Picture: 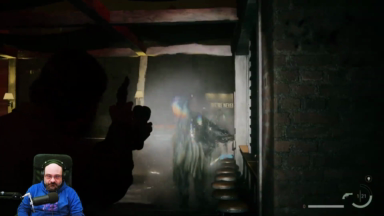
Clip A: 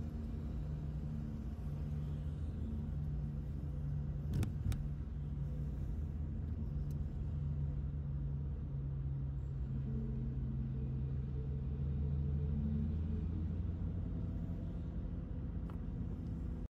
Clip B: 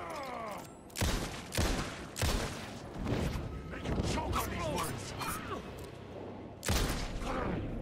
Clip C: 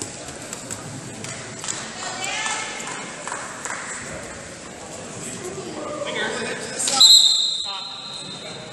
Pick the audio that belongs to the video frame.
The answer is B